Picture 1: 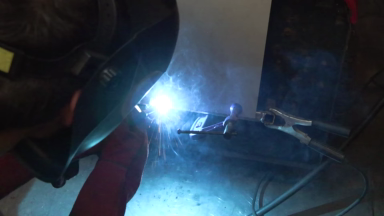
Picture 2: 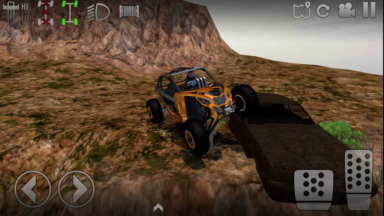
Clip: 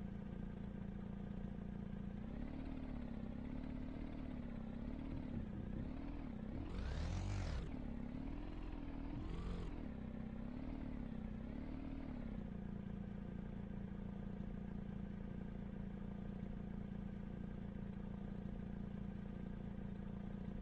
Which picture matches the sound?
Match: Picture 2